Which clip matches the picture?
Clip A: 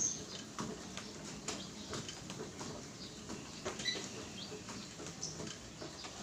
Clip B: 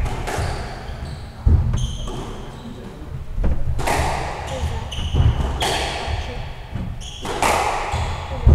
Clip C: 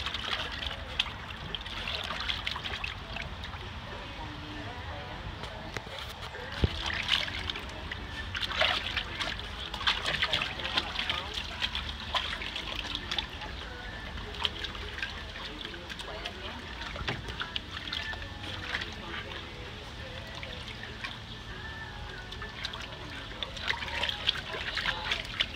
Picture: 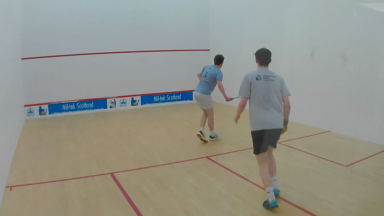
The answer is B